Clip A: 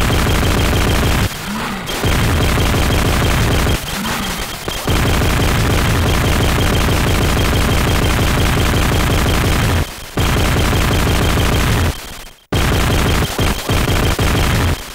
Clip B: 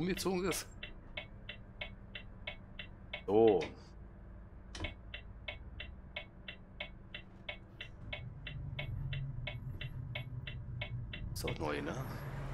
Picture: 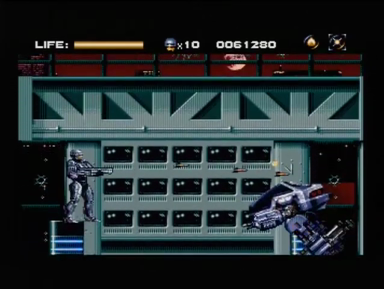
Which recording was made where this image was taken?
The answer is A